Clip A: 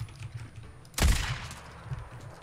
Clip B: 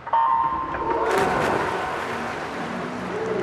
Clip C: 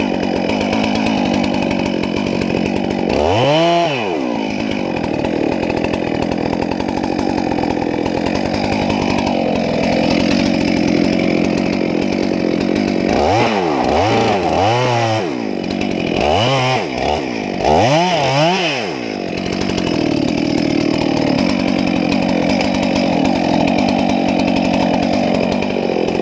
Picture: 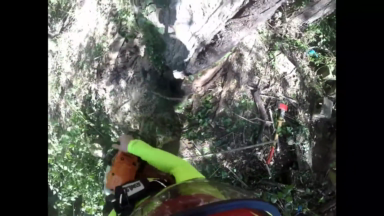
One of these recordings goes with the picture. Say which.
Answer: C